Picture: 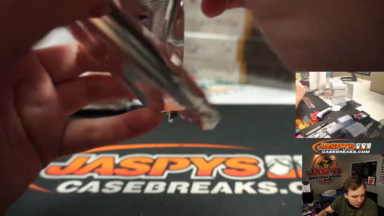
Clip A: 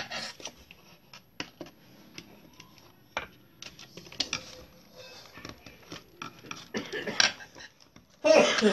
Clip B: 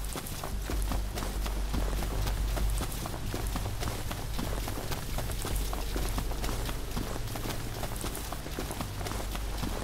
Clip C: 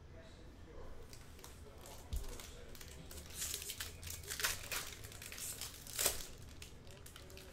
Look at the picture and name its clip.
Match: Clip C